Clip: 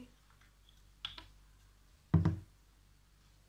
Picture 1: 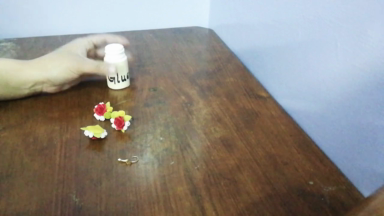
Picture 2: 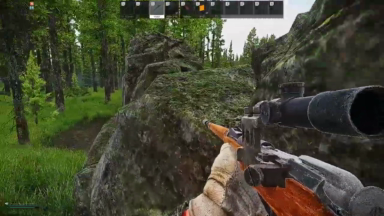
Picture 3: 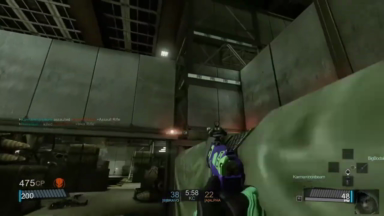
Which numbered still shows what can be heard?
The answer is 1